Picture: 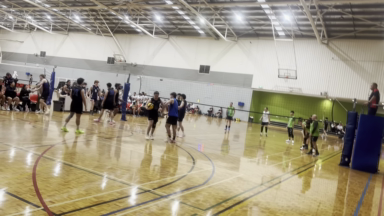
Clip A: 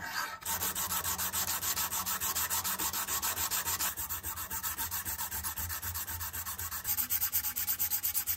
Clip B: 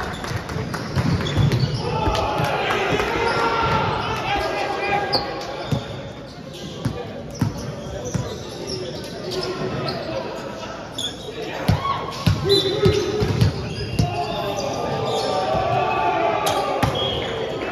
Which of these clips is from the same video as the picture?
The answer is B